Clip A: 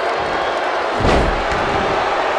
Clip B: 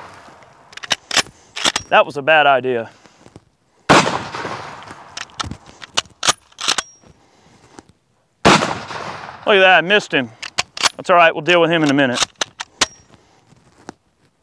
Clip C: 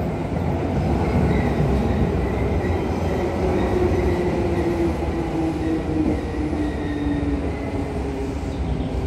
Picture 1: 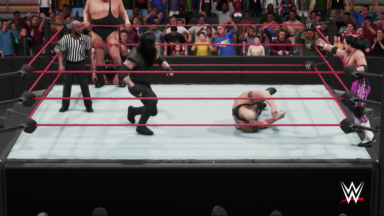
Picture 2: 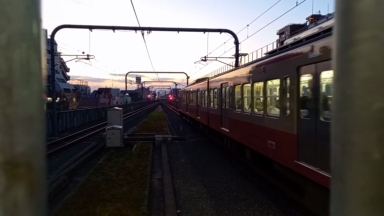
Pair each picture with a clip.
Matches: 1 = A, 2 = C